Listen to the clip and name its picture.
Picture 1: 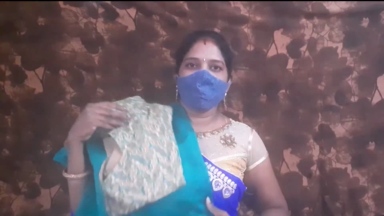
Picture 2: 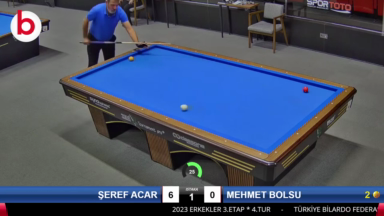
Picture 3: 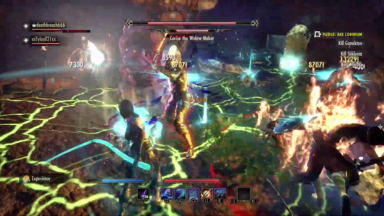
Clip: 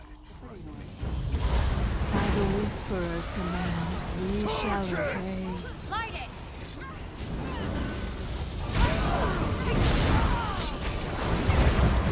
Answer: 3